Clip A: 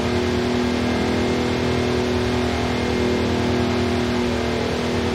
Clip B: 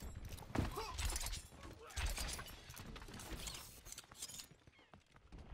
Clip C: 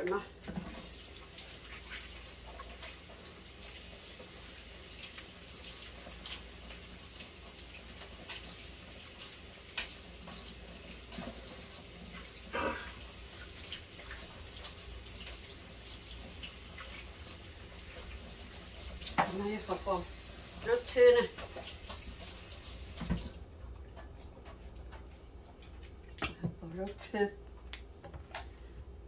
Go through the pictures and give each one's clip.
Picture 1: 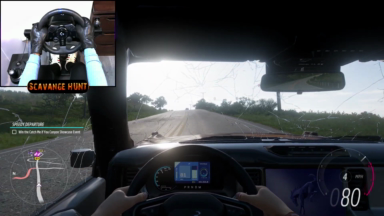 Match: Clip A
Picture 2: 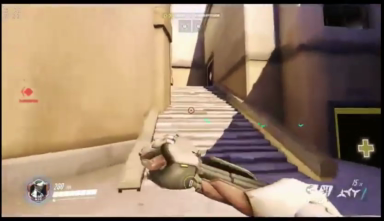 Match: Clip B